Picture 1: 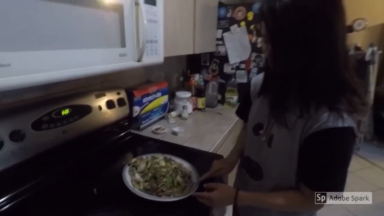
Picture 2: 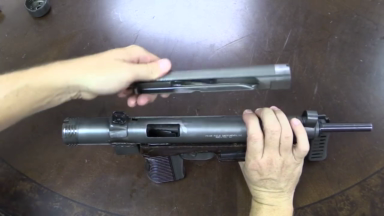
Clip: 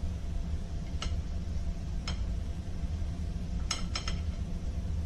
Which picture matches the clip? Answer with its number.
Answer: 1